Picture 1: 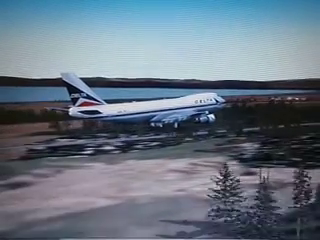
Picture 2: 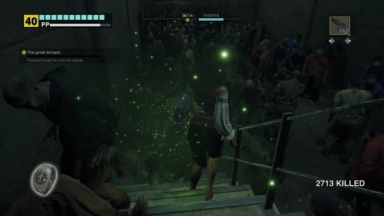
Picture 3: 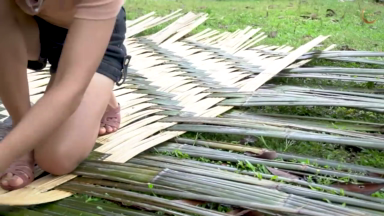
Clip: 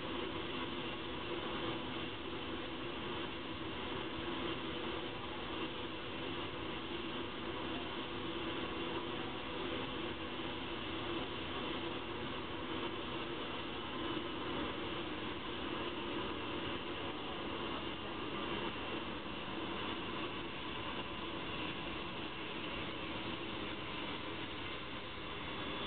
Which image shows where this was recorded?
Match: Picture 1